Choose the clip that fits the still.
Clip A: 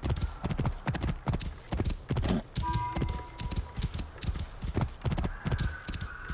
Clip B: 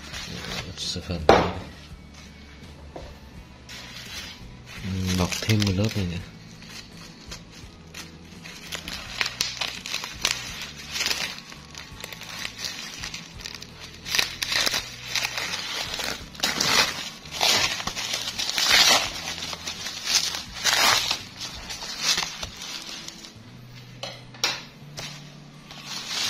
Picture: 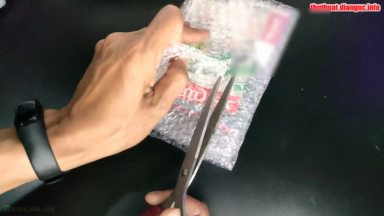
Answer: B